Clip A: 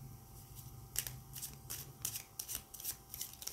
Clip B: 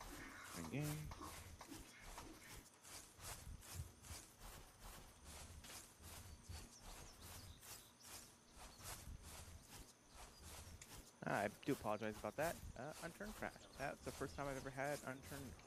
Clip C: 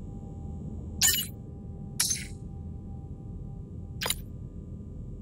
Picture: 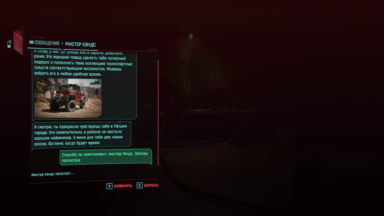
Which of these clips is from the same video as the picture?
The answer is C